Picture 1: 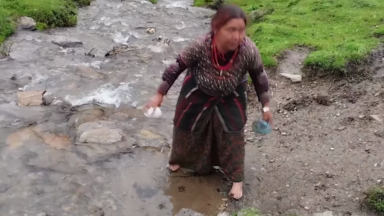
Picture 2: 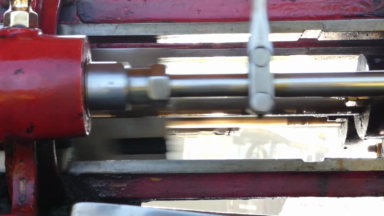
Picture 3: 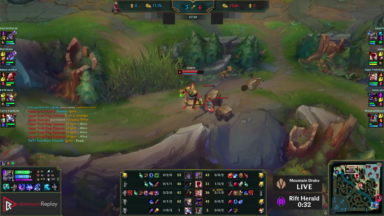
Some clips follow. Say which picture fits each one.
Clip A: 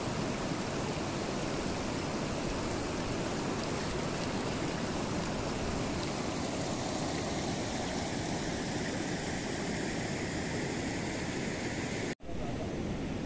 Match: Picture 1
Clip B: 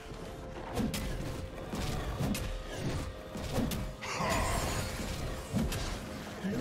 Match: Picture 3